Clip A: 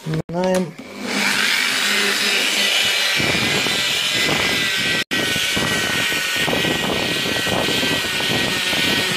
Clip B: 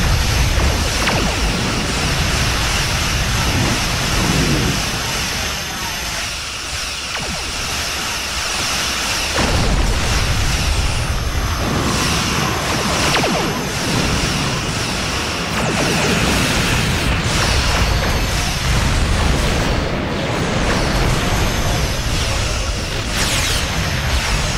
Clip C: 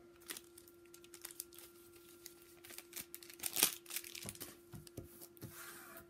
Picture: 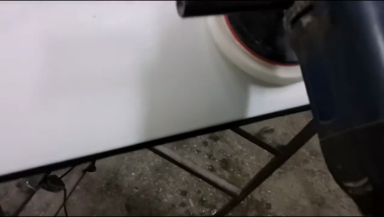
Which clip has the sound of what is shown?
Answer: A